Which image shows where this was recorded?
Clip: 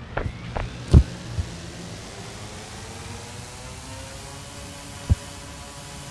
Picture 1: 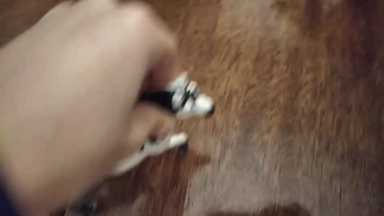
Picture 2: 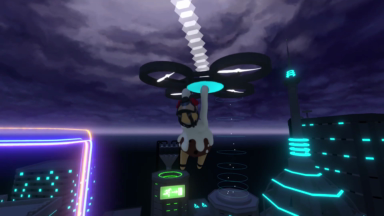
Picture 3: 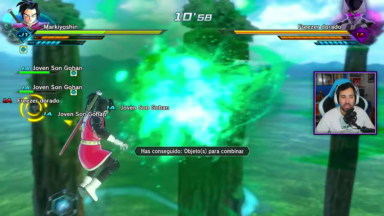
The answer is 2